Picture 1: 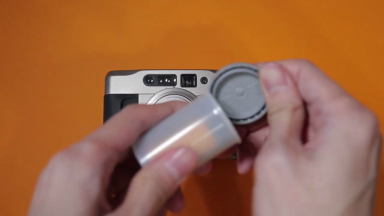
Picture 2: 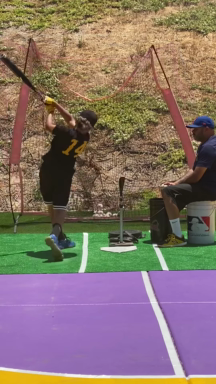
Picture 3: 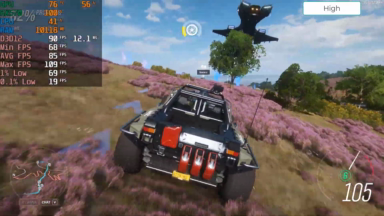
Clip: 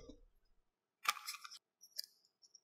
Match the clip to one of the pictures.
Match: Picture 1